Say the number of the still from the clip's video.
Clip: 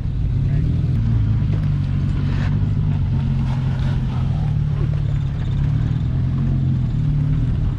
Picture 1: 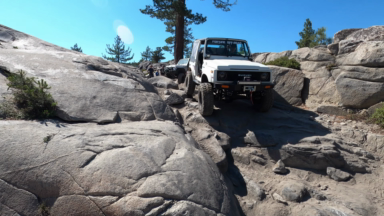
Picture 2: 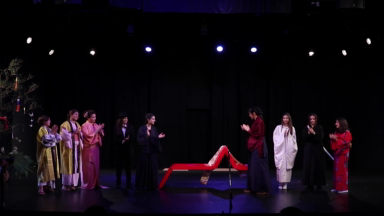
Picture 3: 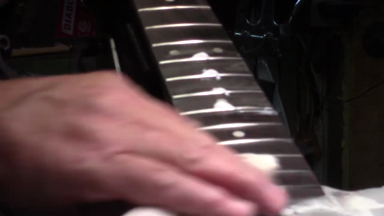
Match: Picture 1